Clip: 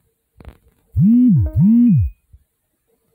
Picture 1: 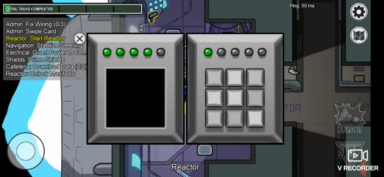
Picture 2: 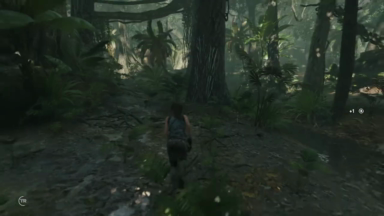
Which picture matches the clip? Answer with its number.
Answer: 1